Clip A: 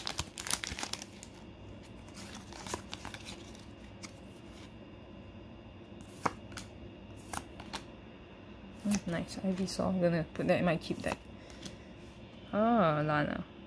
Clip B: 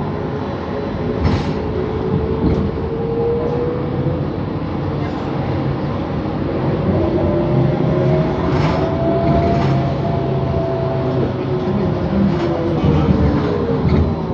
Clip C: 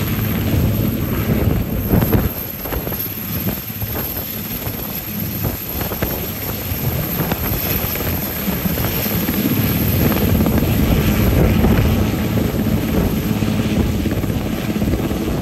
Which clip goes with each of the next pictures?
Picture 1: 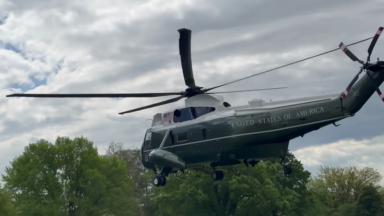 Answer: C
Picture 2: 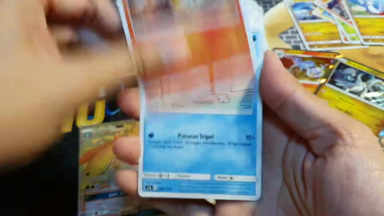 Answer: A